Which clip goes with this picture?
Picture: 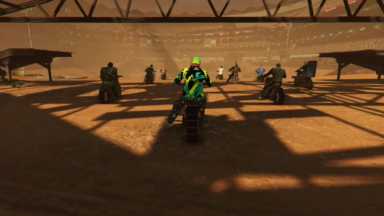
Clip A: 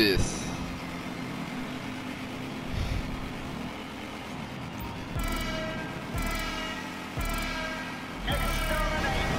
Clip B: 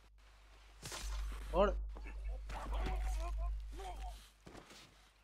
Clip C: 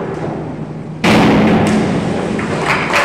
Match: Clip A